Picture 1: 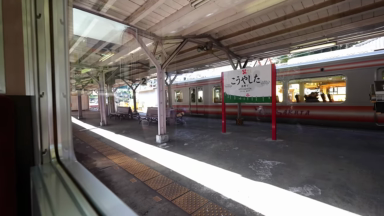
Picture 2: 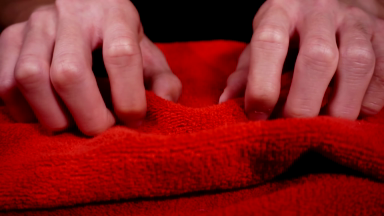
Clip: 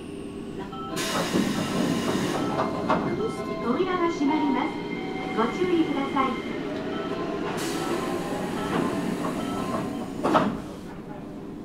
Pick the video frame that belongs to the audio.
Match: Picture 1